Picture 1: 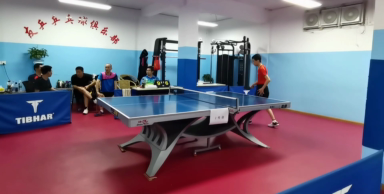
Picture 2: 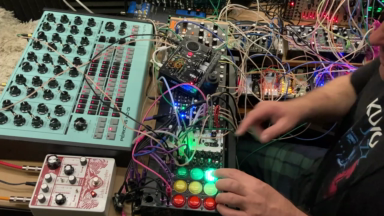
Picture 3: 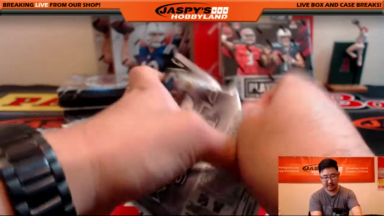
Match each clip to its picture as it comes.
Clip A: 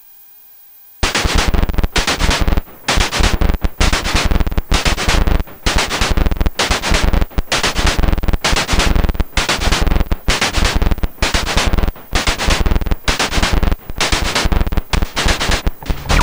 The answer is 2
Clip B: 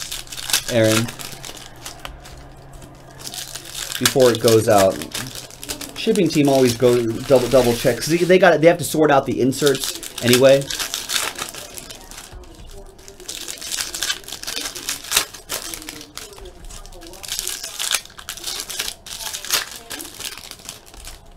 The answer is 3